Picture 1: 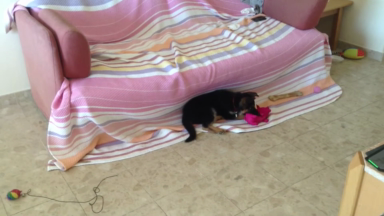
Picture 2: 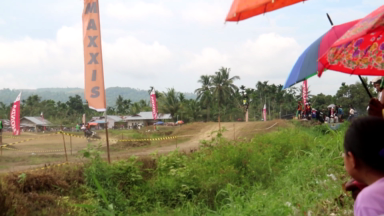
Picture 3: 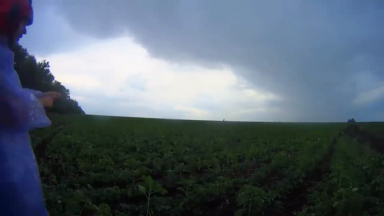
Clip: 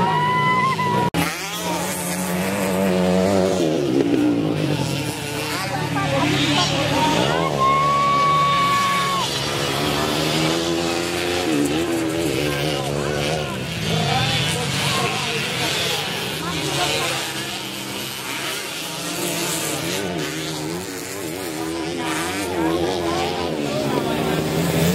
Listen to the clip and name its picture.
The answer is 2